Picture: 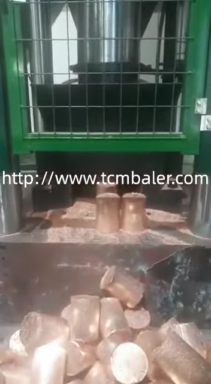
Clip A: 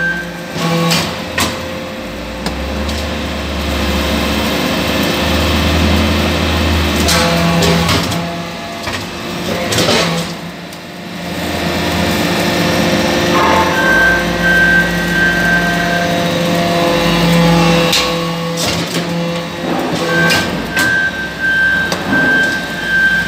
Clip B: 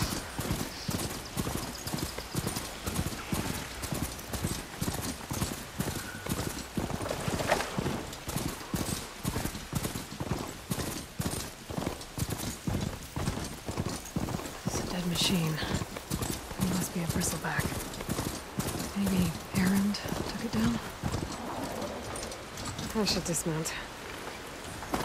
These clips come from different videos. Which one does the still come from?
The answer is A